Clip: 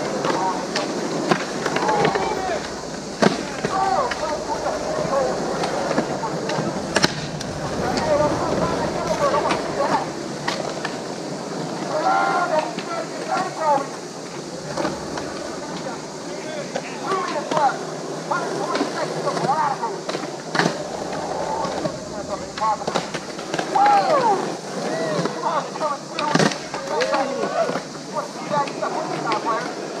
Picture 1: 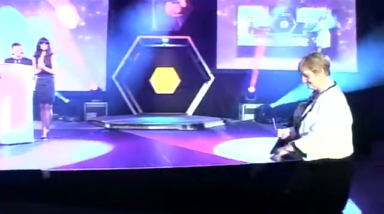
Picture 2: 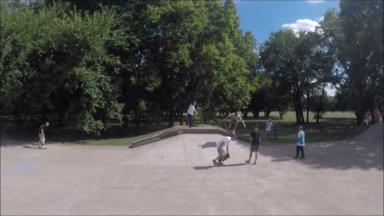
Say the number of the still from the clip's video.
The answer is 2